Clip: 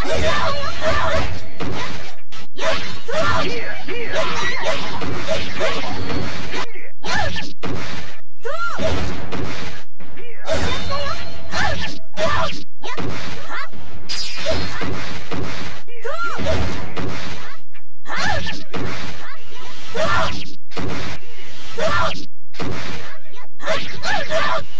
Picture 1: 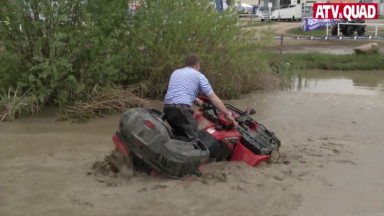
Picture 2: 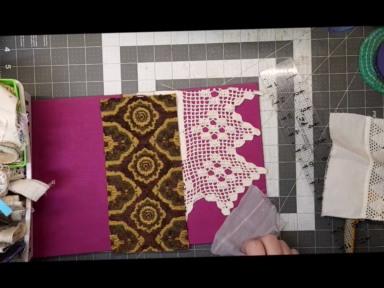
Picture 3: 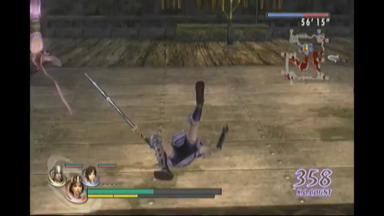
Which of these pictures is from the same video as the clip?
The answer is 3